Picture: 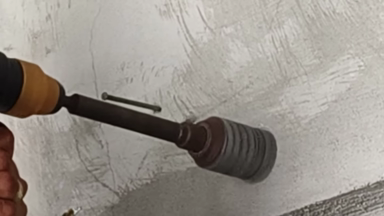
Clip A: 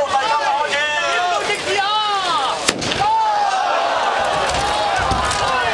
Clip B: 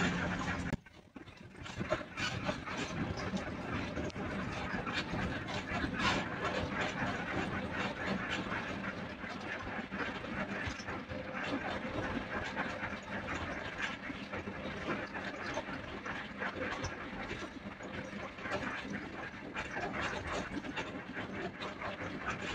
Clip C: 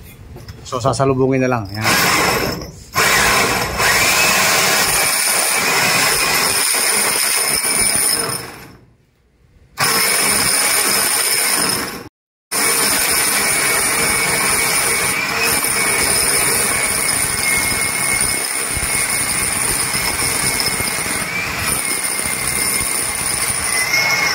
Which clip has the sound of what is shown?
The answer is C